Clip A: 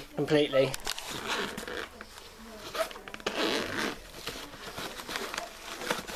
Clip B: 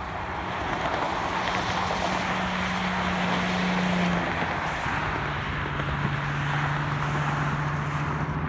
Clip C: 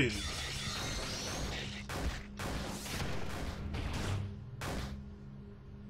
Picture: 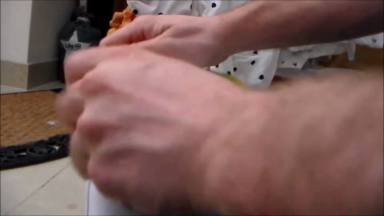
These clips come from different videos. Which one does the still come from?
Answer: A